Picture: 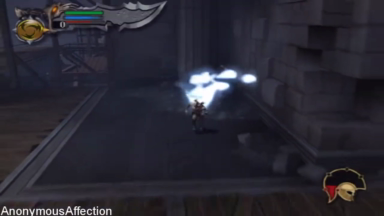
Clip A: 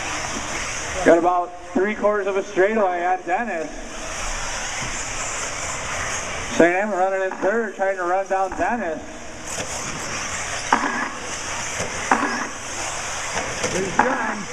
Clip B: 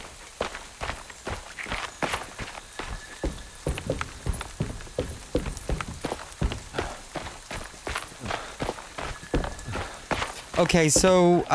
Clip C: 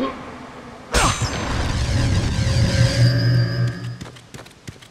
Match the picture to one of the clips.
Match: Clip C